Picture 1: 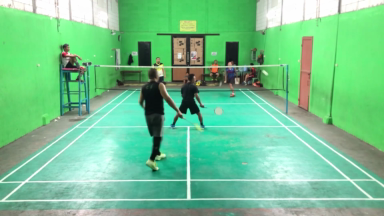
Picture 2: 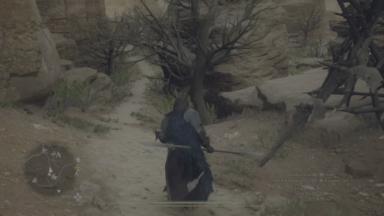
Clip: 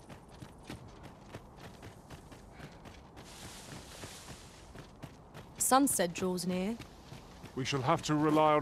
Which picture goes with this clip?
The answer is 2